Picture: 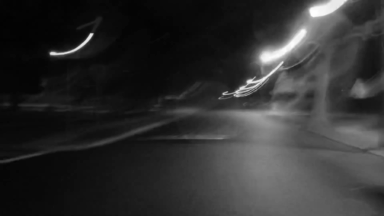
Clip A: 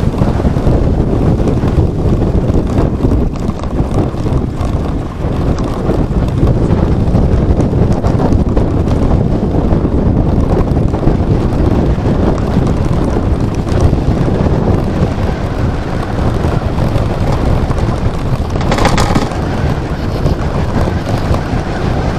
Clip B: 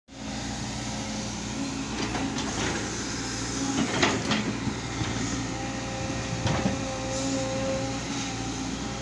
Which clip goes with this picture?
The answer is A